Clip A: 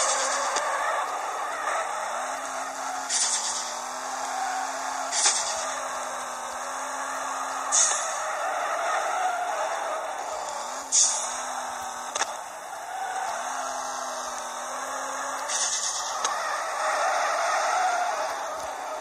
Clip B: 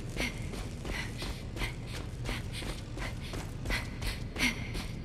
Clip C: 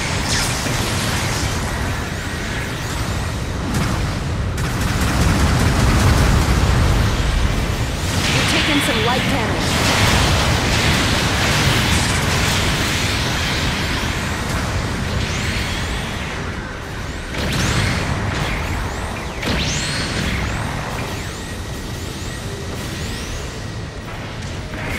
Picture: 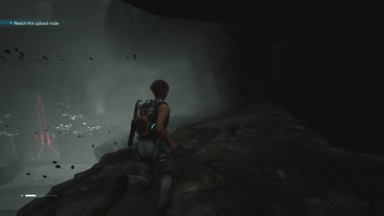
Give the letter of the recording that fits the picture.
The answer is B